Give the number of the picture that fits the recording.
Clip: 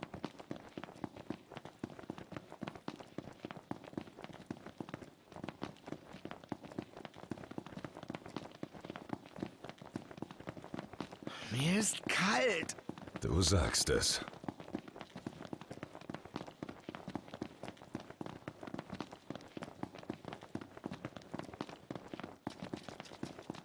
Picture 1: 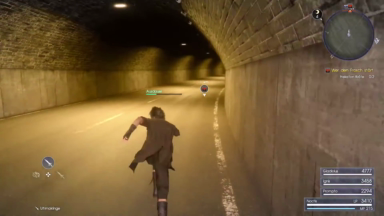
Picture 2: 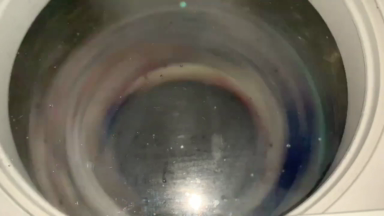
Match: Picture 1